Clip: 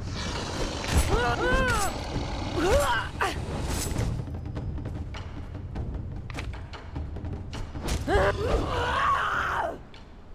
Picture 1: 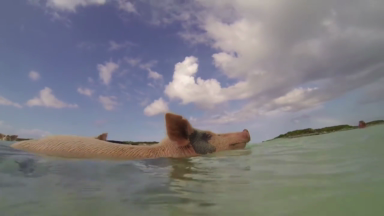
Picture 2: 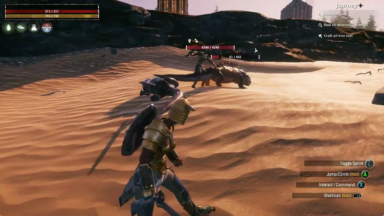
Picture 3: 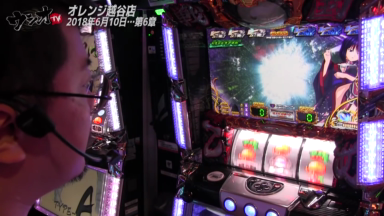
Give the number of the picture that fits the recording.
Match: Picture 2